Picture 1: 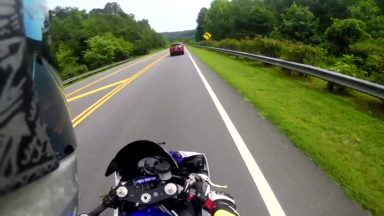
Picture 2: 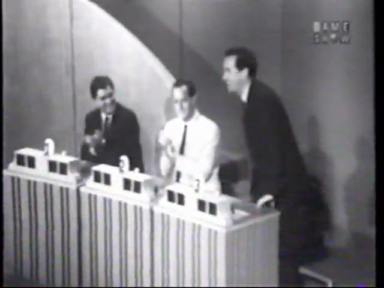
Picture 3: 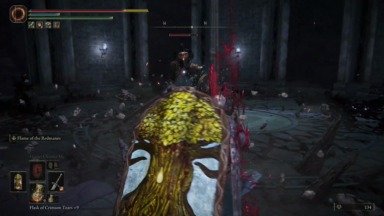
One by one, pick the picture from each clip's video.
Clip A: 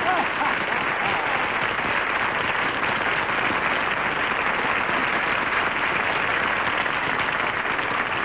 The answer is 2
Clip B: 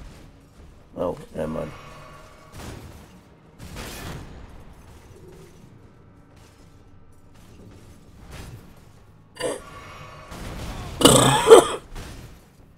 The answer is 3